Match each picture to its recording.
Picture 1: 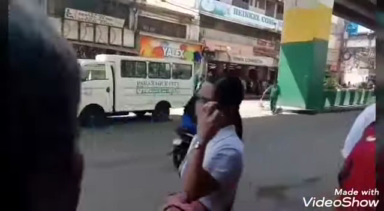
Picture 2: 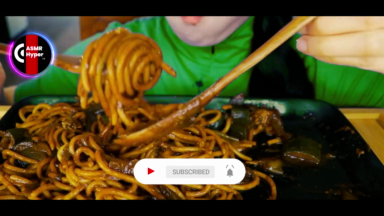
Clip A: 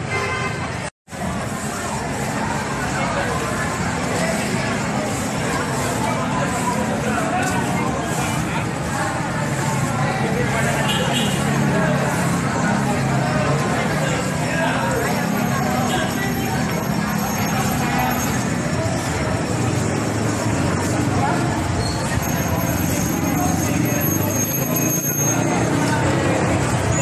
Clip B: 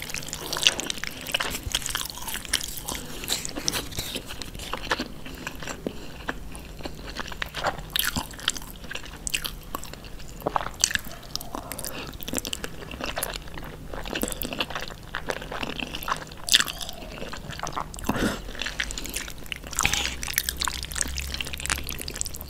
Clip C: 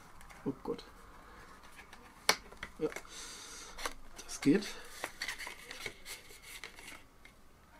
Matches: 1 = A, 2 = B